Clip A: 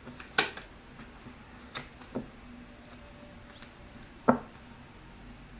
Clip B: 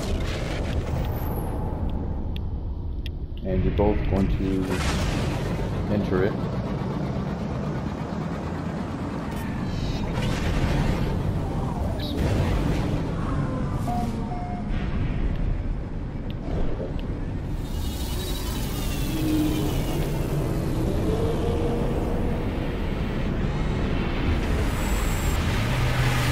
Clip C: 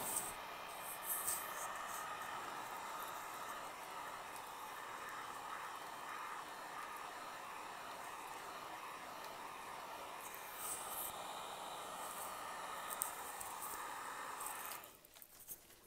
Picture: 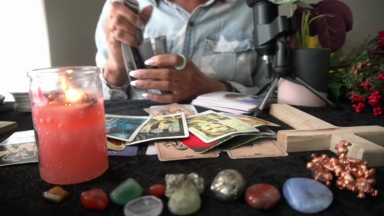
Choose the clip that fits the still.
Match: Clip A